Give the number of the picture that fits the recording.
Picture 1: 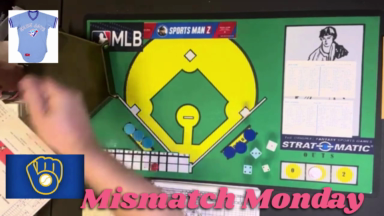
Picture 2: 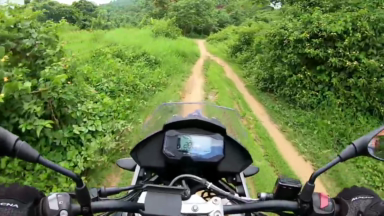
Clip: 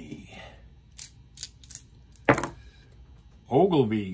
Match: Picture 1